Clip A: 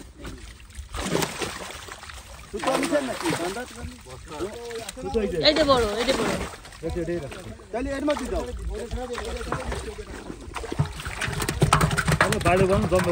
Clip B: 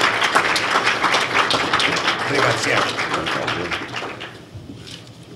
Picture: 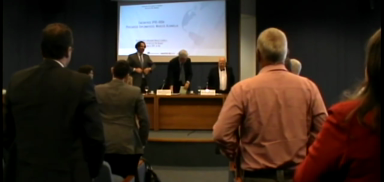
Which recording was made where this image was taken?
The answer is B